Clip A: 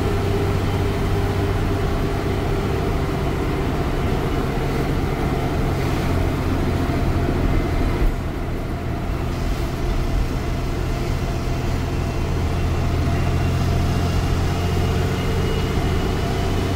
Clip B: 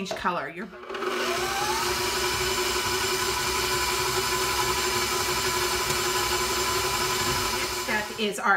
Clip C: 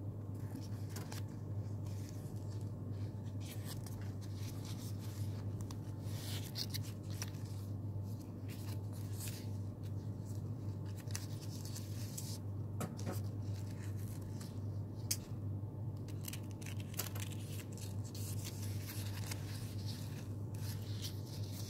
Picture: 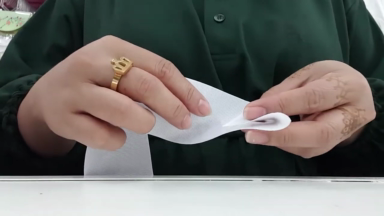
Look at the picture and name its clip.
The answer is C